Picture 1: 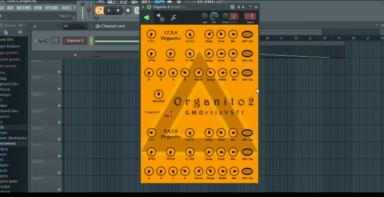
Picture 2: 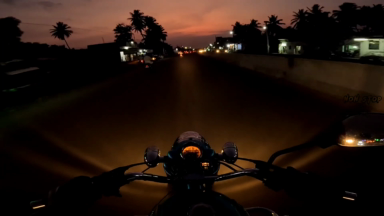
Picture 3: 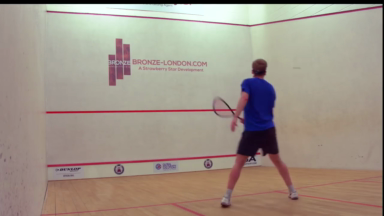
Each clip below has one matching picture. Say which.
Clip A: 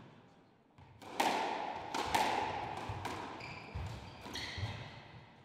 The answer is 3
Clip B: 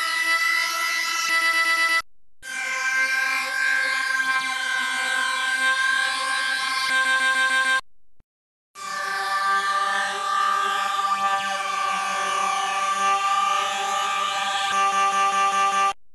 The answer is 1